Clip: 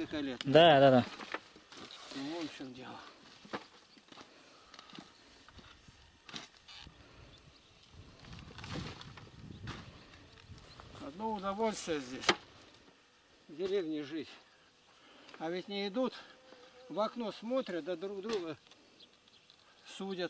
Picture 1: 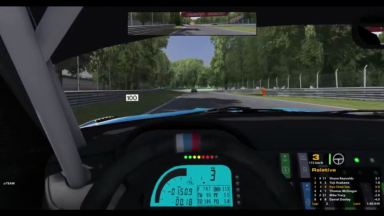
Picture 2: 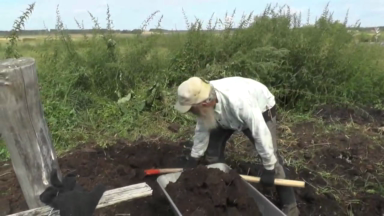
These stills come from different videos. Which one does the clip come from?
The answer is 2